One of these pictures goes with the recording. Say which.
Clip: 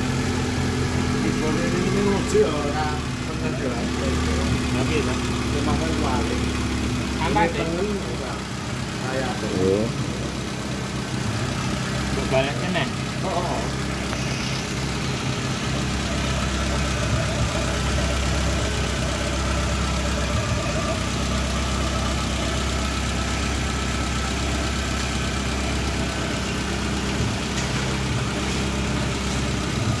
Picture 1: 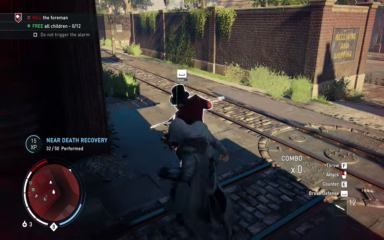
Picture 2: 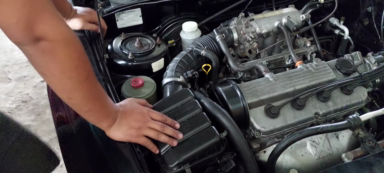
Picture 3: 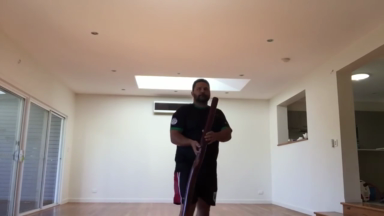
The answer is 2